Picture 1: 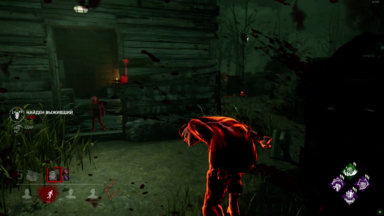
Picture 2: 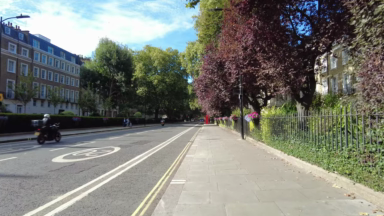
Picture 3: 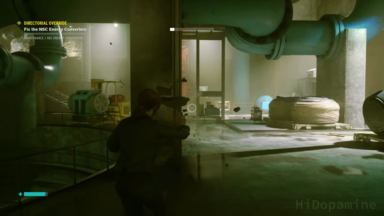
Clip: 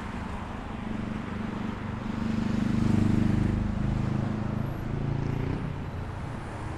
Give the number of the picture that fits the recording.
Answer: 2